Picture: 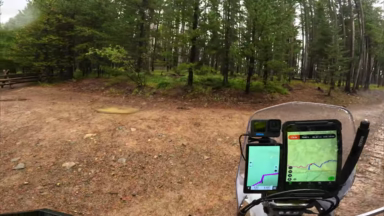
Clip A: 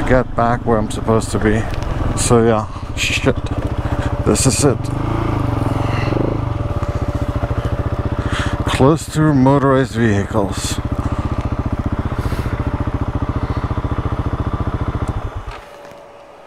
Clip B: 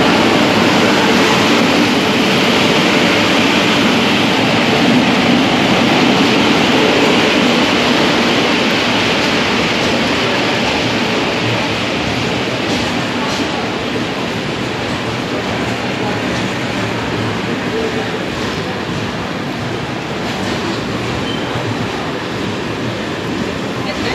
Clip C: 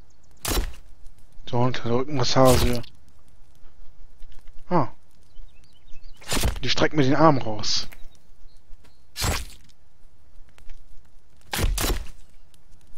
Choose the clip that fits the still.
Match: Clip A